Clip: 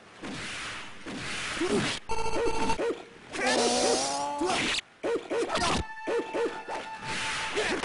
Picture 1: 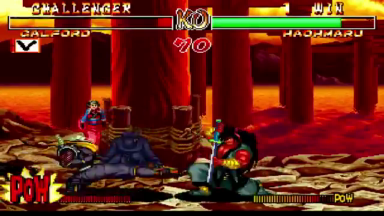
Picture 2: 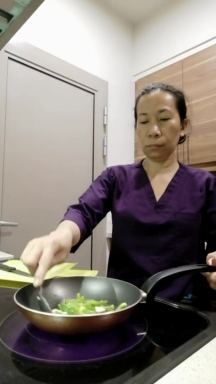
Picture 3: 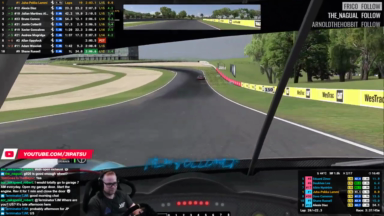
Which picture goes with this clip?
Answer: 1